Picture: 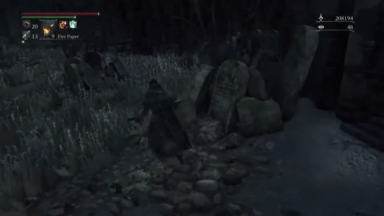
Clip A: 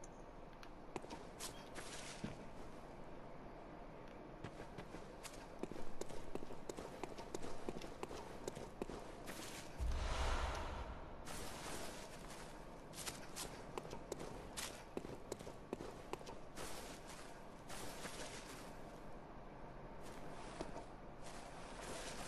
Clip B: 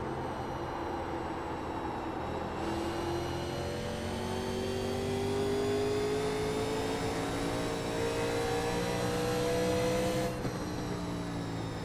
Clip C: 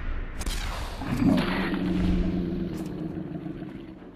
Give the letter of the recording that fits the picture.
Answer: A